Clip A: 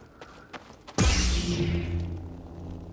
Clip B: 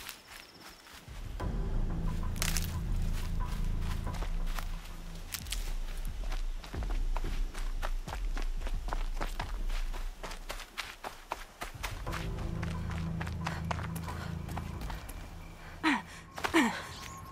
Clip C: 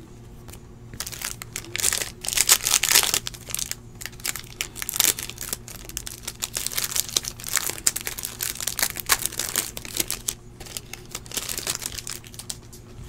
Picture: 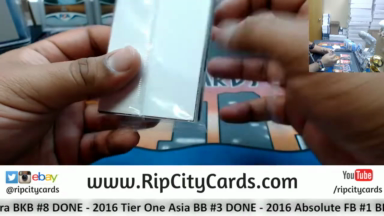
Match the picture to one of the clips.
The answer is C